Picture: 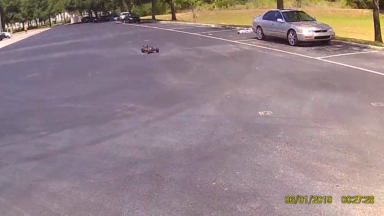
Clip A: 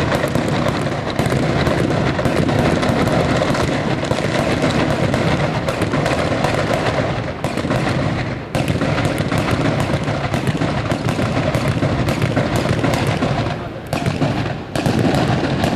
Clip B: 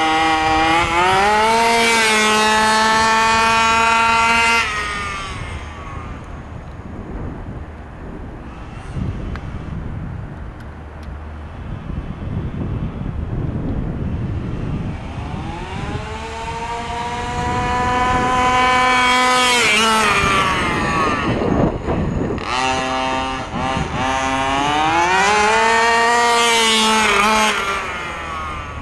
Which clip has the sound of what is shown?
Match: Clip B